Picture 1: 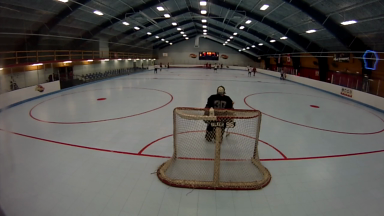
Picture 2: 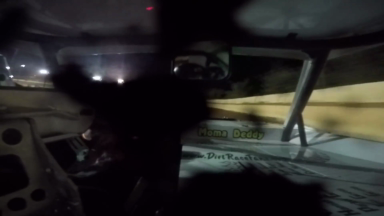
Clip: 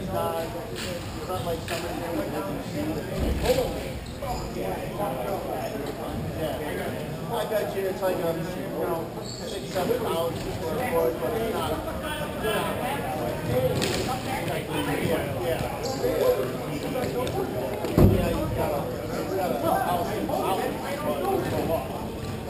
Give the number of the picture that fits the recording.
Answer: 1